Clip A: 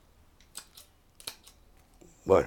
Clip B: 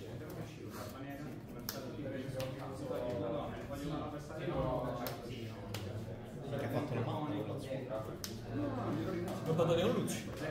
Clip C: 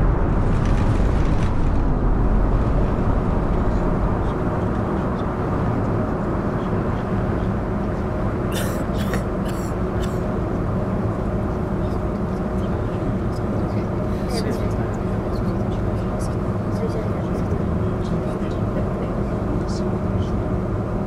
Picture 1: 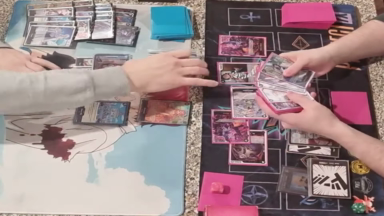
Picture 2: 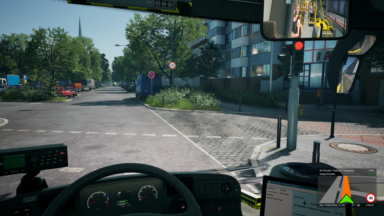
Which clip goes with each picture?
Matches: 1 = B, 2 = C